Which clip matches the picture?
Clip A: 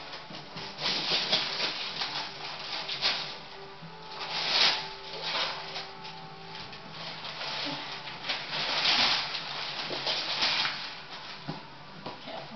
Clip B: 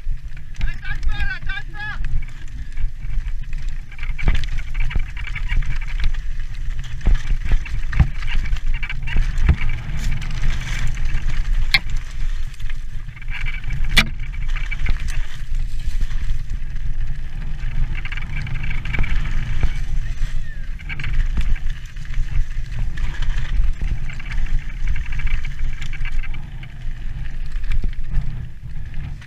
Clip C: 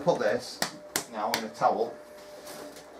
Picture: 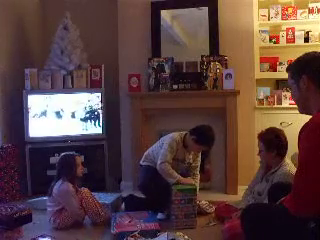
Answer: A